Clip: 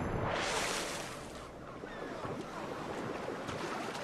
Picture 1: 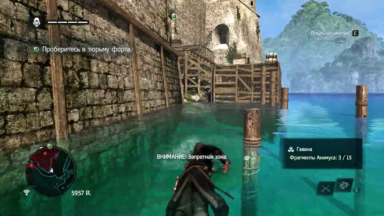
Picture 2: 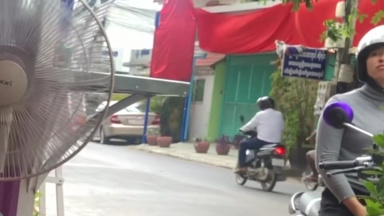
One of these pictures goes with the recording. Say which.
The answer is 1